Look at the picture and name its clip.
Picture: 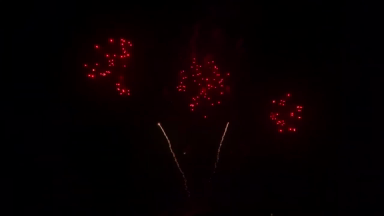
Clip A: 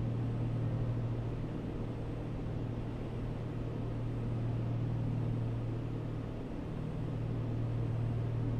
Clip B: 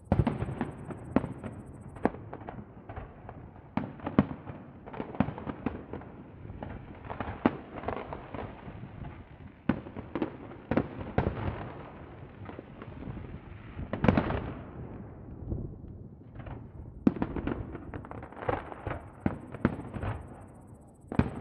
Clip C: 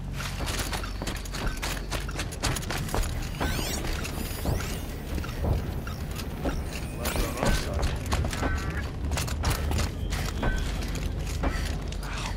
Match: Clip B